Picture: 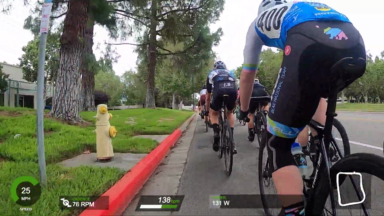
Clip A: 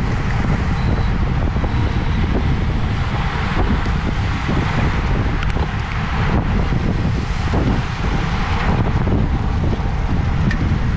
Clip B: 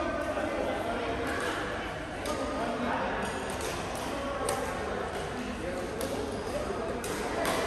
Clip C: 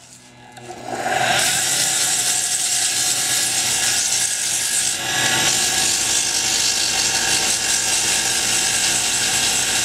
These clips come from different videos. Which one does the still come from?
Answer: A